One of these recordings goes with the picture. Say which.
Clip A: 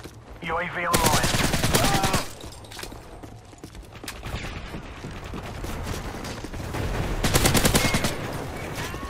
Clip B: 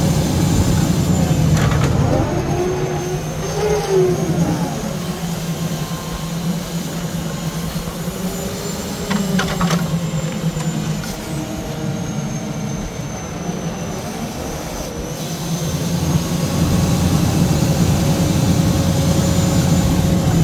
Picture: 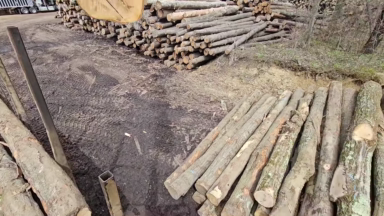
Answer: B